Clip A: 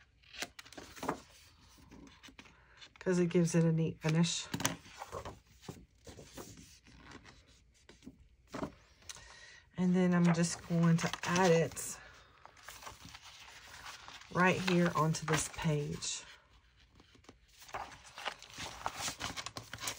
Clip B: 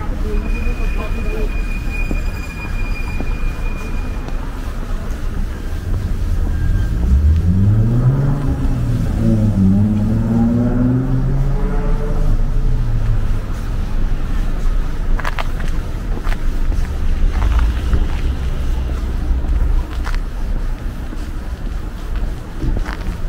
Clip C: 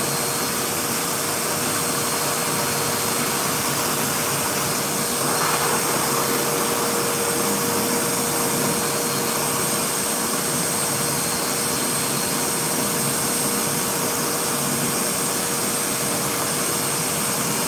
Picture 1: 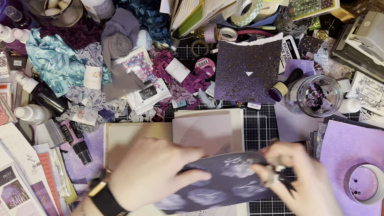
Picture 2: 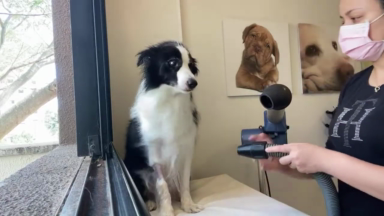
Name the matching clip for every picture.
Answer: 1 A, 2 C